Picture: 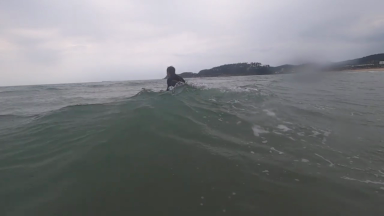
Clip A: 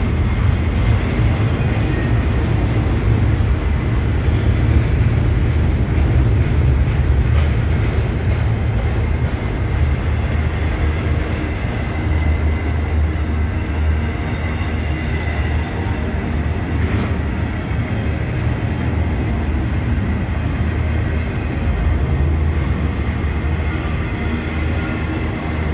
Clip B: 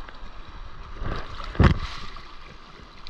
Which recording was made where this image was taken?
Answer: B